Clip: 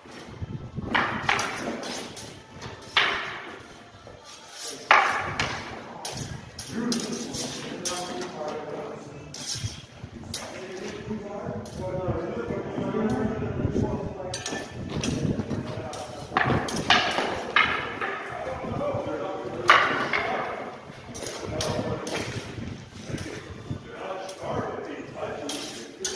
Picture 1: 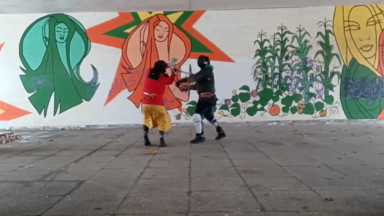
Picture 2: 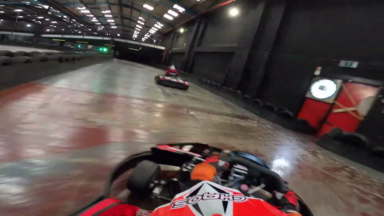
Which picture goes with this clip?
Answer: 1